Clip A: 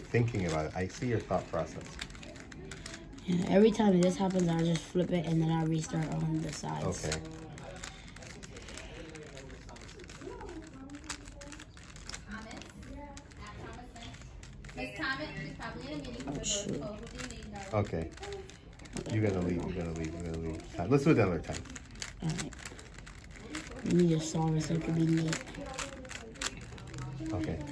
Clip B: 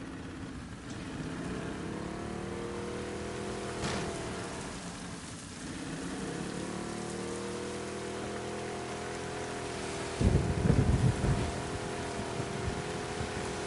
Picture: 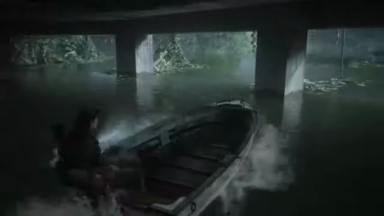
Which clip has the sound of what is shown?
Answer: B